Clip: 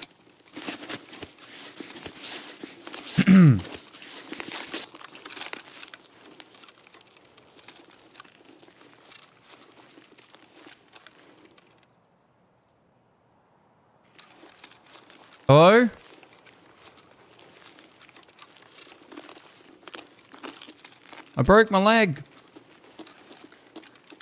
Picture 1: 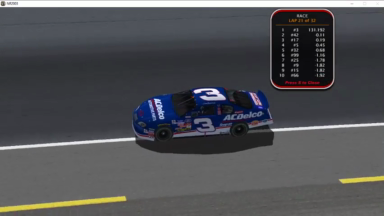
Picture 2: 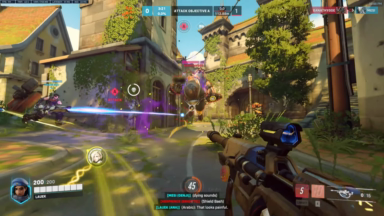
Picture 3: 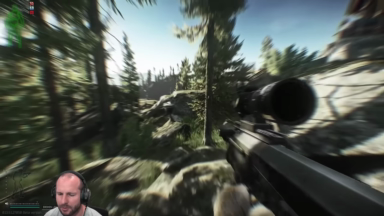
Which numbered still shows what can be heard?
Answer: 3